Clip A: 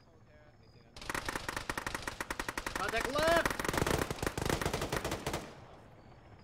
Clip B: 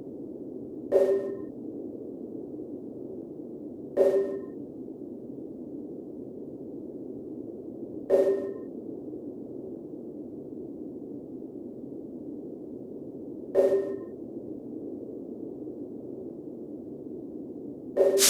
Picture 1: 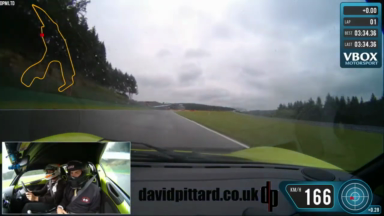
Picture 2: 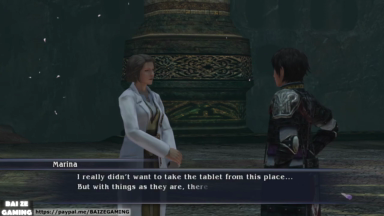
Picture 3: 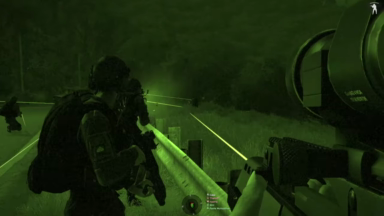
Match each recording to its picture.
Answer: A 3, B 2